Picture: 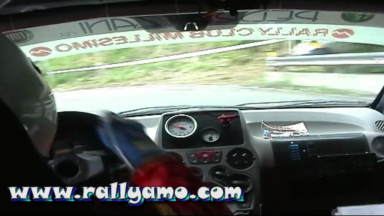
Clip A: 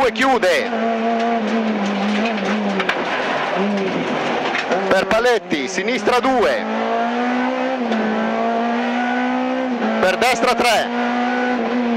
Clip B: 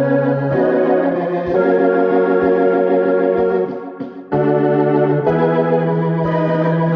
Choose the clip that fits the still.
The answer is A